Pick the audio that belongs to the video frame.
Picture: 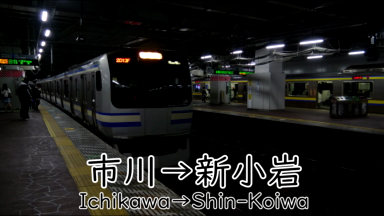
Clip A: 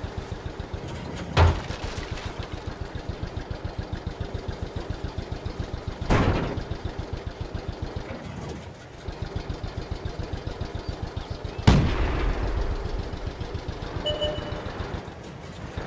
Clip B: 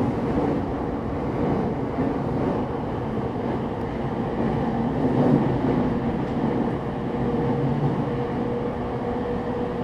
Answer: B